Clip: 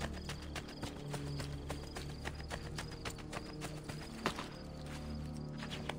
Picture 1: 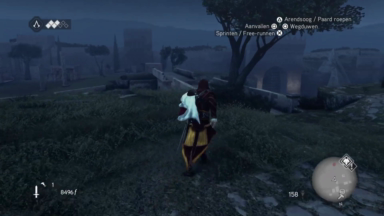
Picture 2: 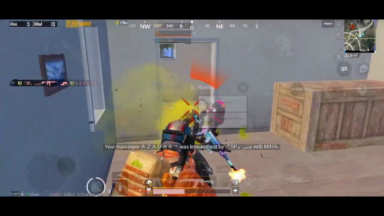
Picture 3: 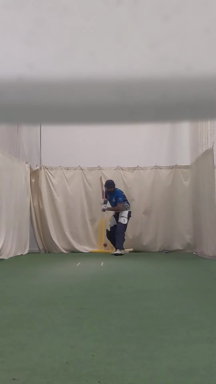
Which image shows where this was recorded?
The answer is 1